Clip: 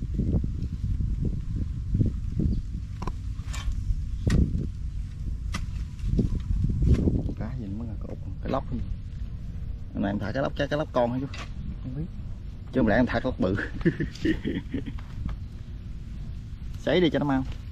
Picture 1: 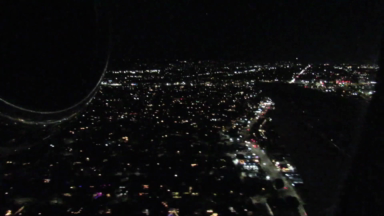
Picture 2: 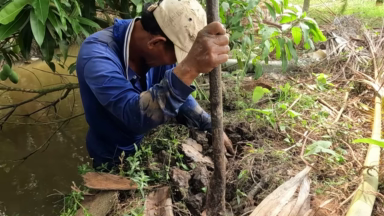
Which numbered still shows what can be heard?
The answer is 2